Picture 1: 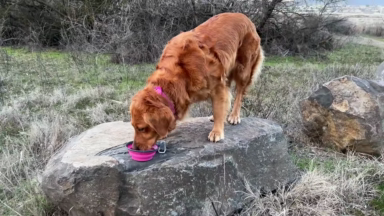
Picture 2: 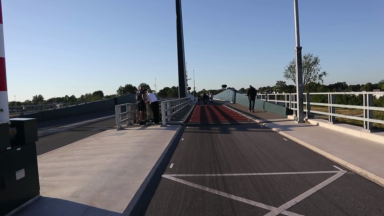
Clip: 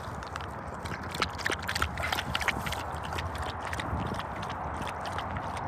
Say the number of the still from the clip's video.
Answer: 1